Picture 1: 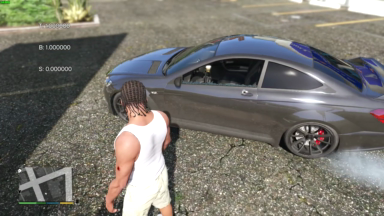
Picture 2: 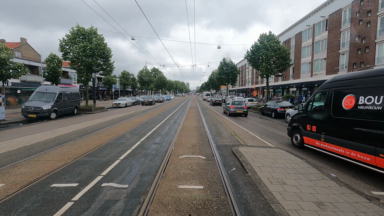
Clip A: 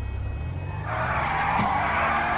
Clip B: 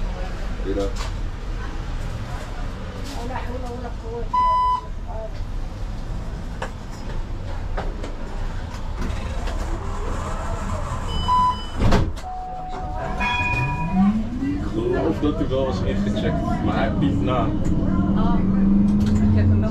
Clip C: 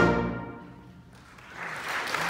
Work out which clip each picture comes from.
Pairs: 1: A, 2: B